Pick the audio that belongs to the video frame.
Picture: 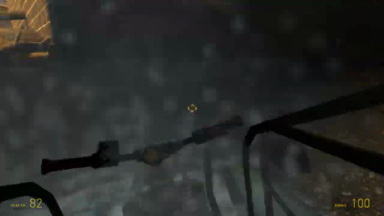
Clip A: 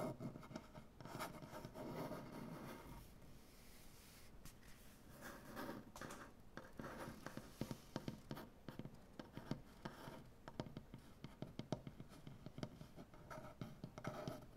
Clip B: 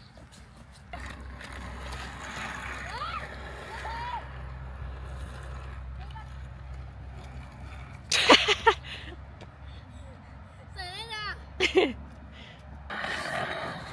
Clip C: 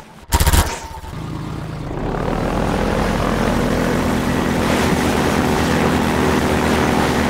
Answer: C